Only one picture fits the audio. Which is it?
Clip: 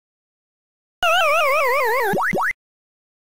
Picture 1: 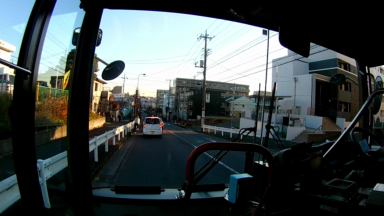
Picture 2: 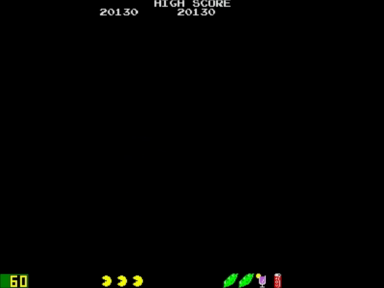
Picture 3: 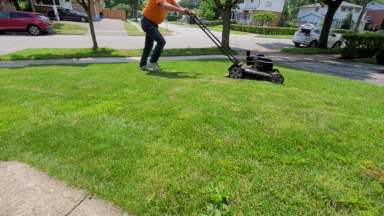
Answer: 2